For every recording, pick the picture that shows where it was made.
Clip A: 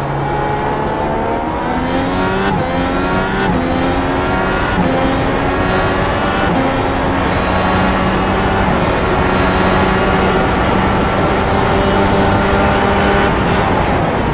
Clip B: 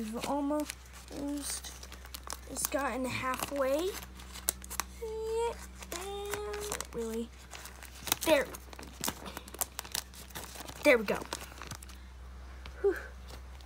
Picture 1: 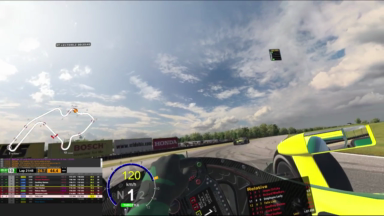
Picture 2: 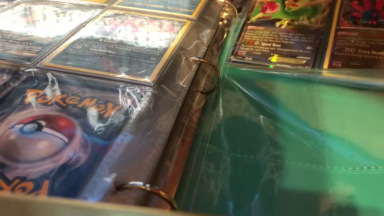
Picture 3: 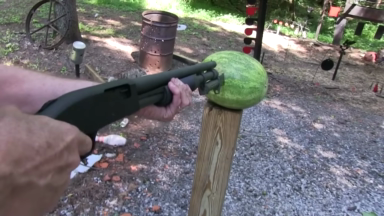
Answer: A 1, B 2